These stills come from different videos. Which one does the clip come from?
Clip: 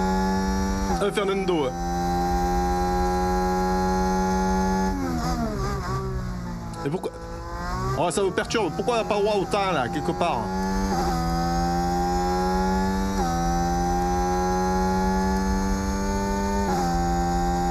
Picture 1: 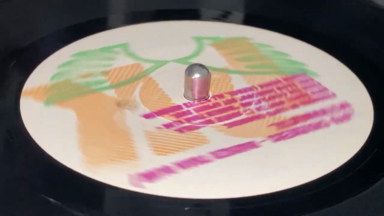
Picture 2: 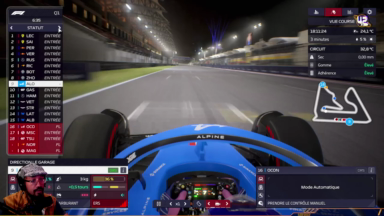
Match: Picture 2